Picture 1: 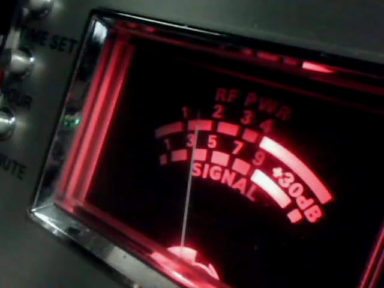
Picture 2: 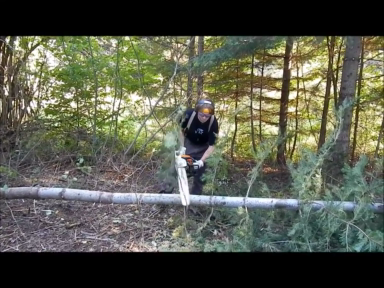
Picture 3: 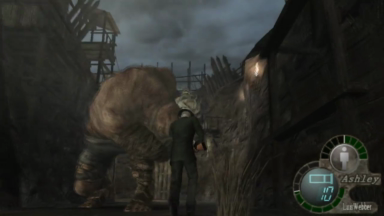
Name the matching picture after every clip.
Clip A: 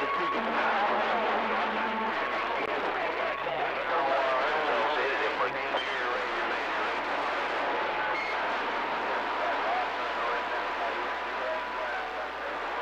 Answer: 1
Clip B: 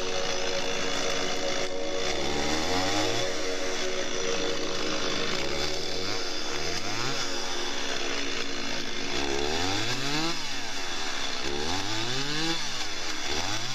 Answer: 2